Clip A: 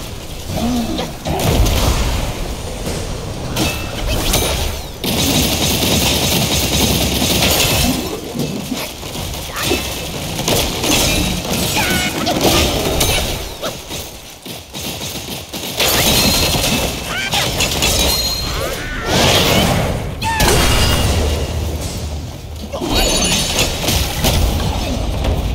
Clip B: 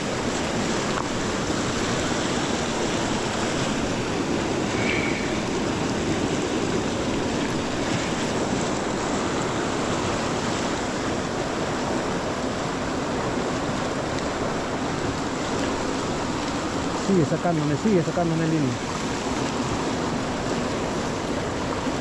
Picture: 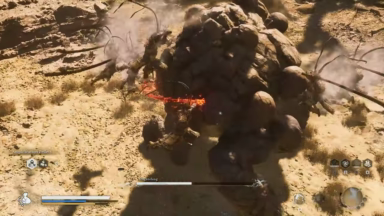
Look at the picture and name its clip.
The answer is A